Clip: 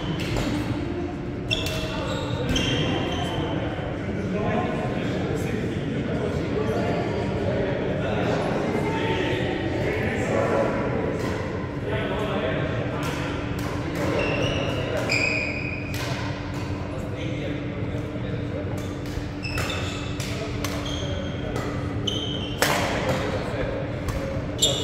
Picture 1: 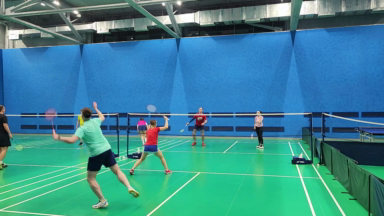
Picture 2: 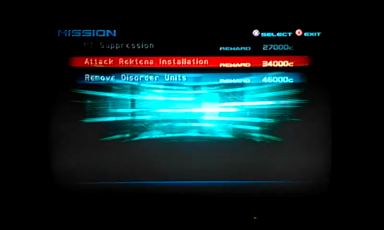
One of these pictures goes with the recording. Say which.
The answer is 1